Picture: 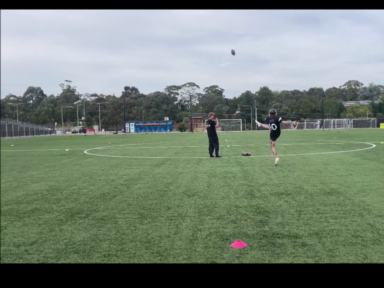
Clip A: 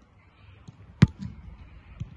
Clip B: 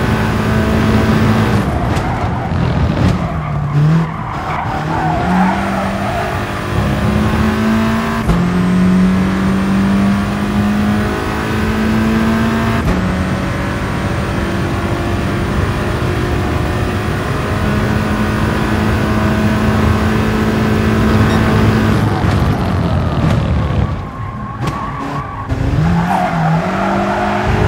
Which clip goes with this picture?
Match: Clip A